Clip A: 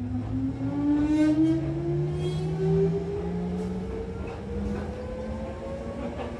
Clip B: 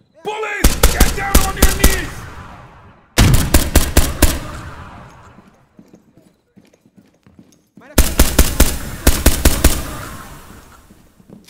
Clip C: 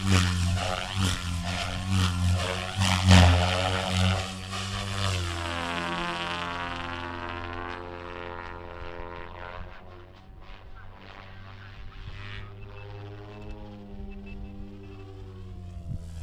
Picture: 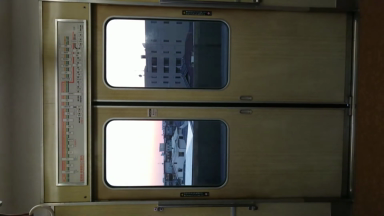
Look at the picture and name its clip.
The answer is A